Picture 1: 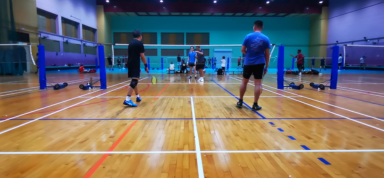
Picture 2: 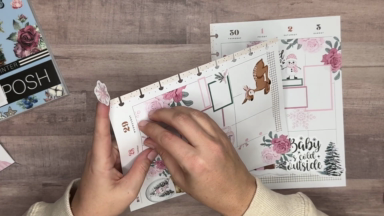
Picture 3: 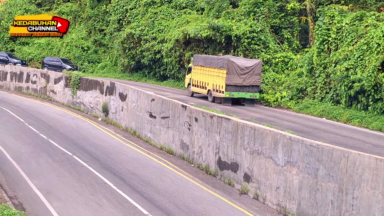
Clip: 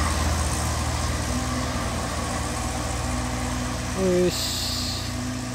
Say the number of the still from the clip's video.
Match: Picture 3